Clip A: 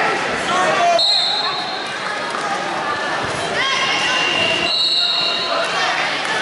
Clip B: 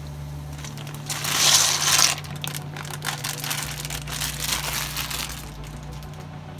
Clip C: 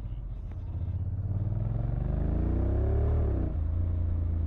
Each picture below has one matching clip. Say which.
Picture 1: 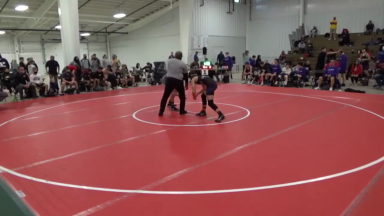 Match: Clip A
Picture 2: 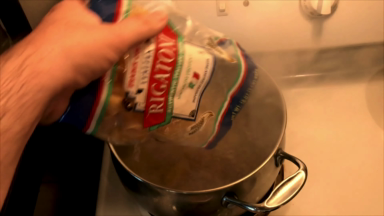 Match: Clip B